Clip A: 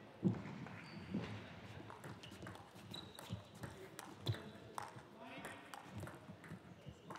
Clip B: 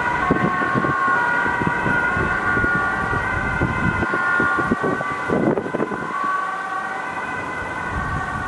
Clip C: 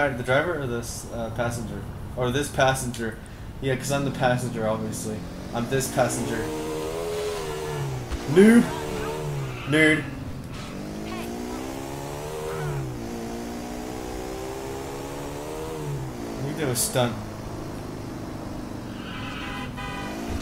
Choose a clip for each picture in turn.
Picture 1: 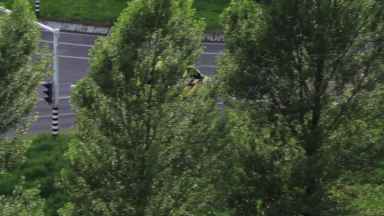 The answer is B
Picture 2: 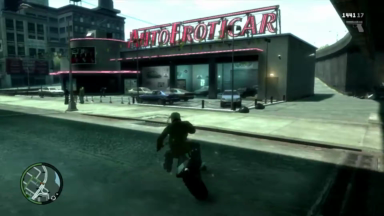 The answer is C